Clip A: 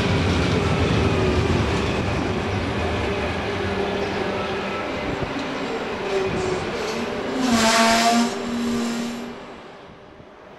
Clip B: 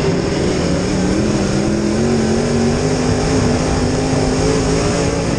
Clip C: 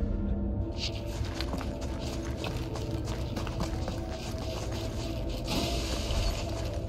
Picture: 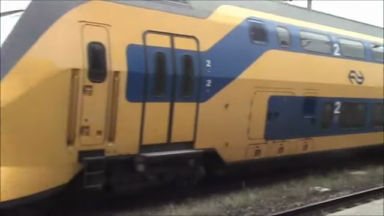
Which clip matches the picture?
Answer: A